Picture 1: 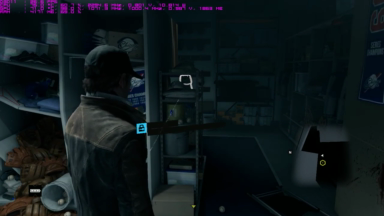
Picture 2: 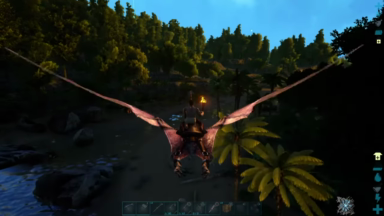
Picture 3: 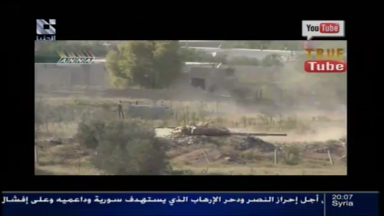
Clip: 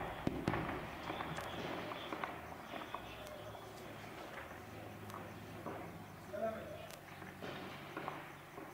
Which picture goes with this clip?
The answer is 3